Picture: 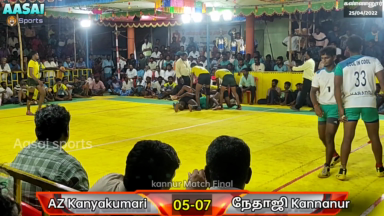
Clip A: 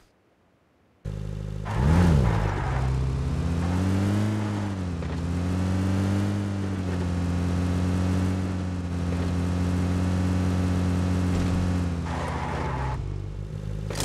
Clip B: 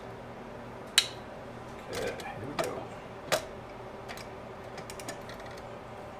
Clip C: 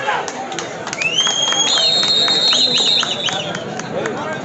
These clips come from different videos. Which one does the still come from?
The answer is C